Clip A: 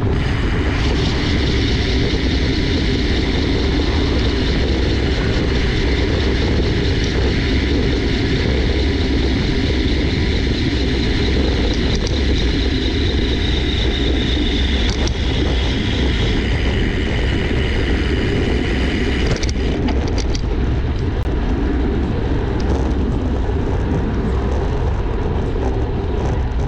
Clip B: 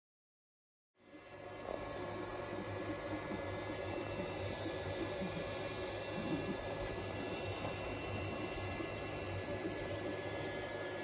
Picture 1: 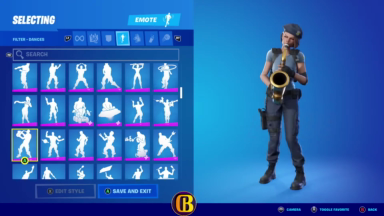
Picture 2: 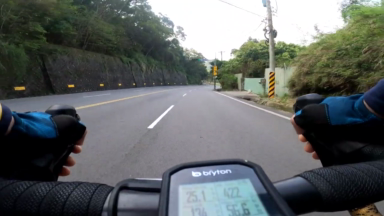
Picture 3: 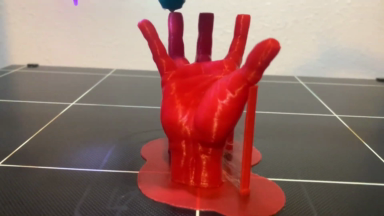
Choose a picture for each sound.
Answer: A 2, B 3